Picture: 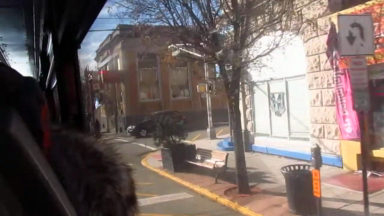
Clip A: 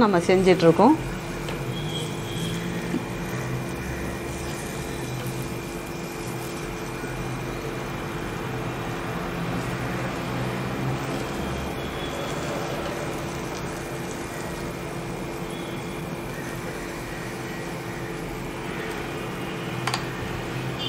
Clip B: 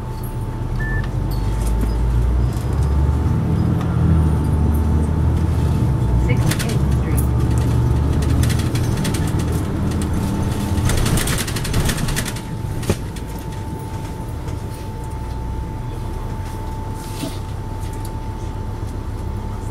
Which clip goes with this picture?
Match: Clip B